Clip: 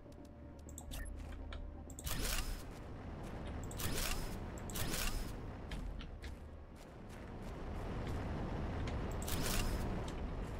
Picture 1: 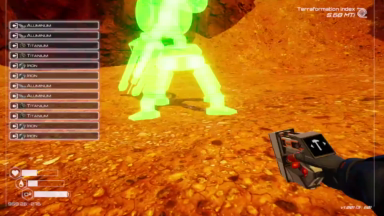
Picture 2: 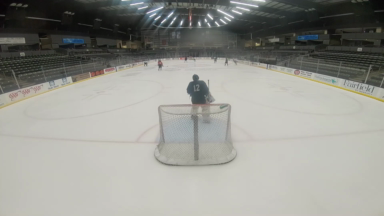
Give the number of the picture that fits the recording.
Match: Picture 1